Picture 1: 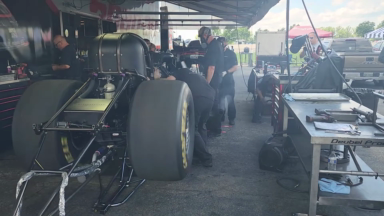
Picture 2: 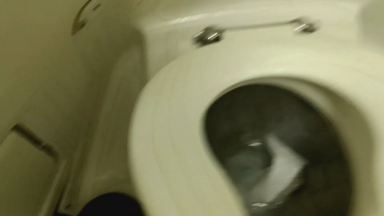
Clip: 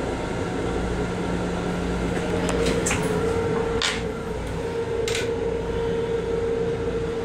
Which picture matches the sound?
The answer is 2